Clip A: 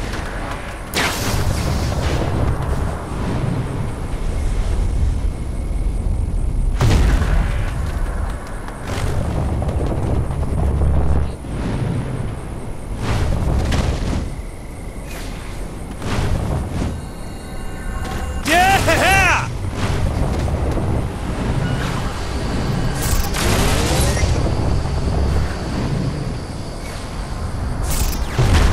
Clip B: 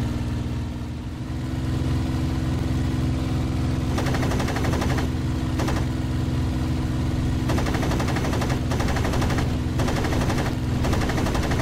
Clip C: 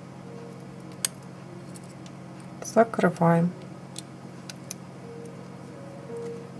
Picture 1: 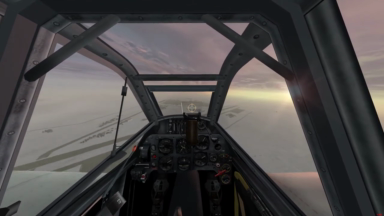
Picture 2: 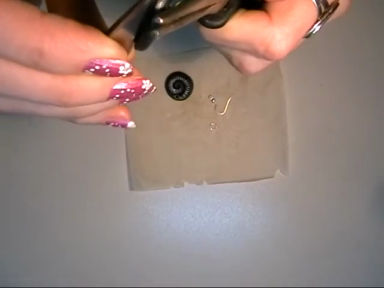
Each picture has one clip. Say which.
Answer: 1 B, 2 C